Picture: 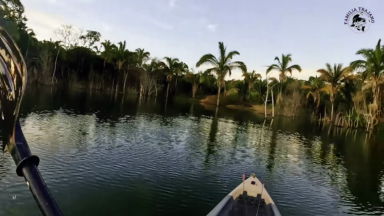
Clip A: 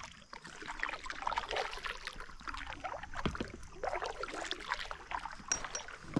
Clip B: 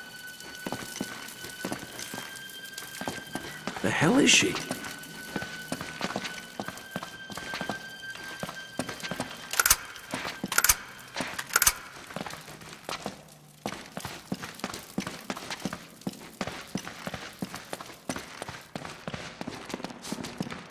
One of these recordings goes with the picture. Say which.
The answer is A